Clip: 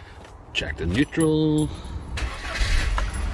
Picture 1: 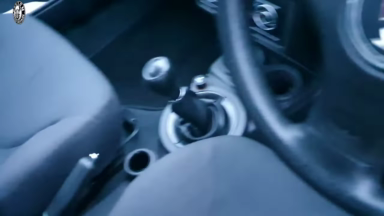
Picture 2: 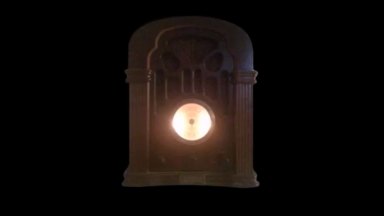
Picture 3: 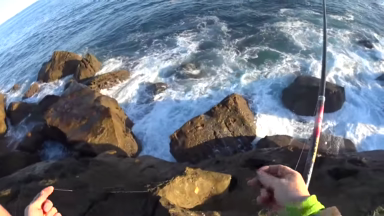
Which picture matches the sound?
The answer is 1